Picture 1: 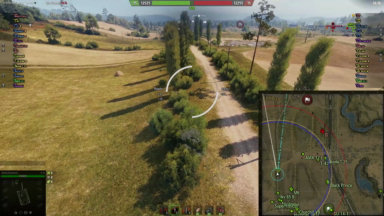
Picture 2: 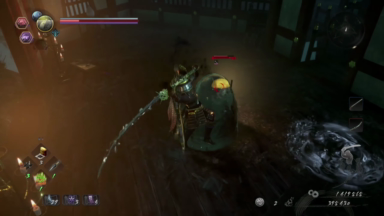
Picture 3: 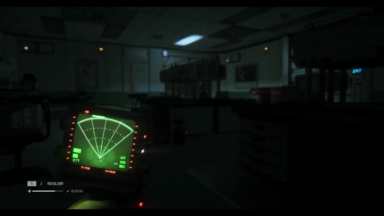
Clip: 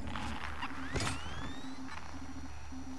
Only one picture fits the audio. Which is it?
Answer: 3